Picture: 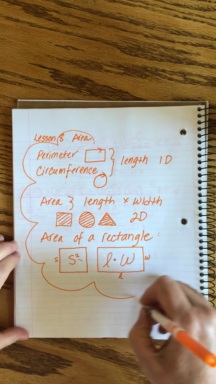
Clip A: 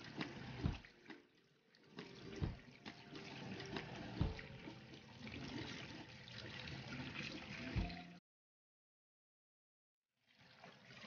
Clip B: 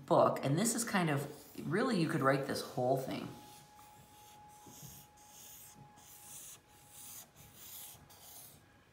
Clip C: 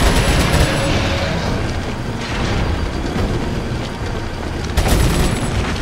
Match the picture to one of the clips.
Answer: B